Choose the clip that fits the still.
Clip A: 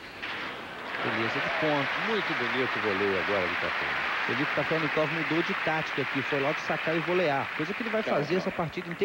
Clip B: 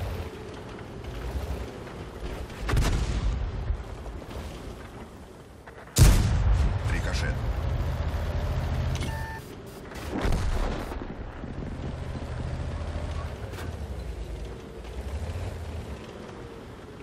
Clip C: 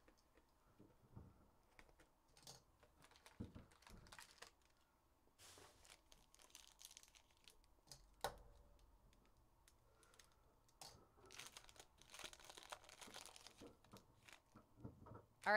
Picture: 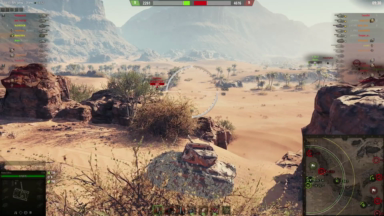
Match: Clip B